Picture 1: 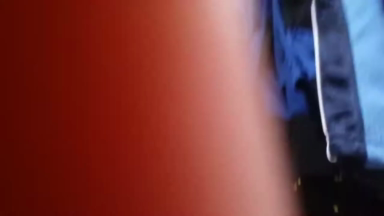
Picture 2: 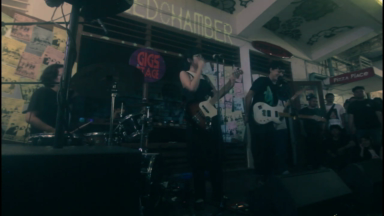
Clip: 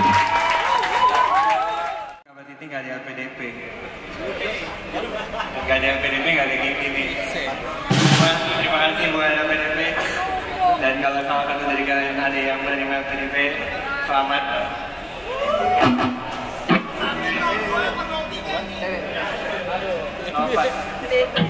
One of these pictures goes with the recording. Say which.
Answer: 2